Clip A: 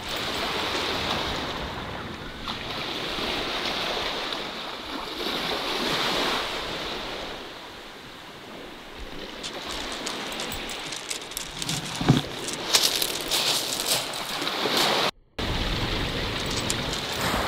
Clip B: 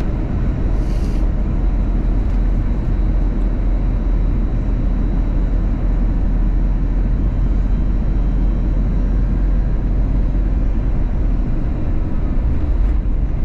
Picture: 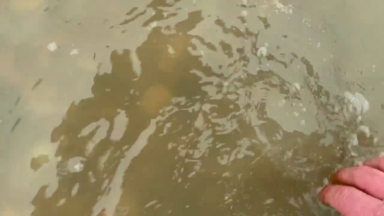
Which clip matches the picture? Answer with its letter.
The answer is A